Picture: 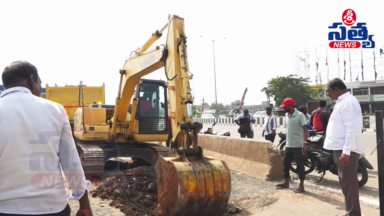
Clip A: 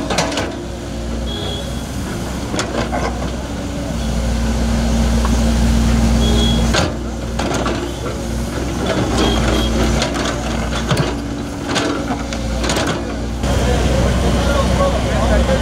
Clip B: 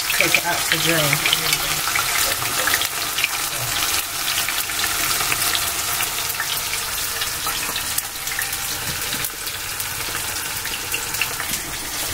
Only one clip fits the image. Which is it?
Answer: A